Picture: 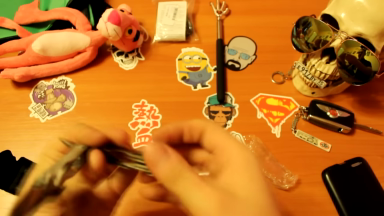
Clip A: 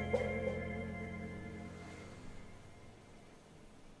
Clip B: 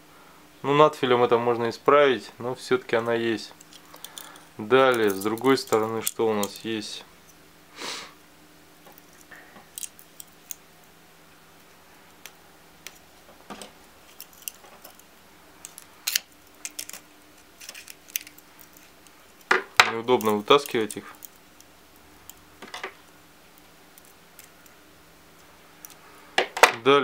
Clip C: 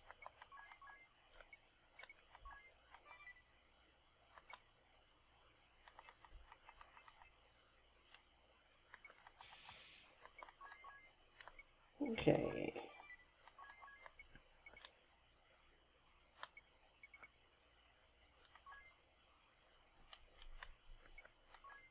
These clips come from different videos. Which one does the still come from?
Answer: B